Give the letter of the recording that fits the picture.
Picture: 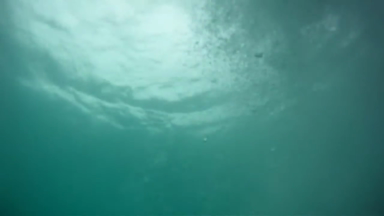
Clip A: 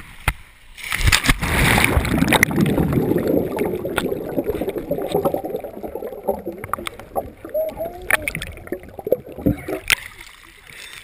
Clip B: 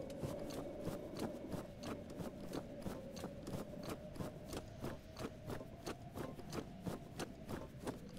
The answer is A